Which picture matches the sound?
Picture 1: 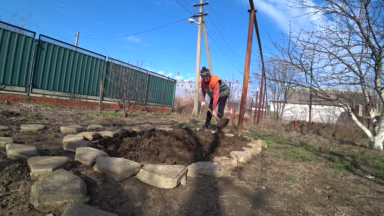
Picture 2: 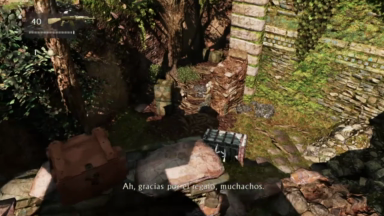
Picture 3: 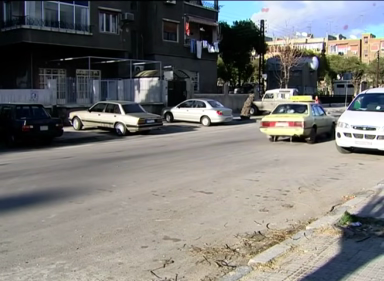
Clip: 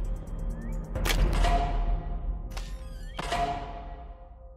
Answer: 2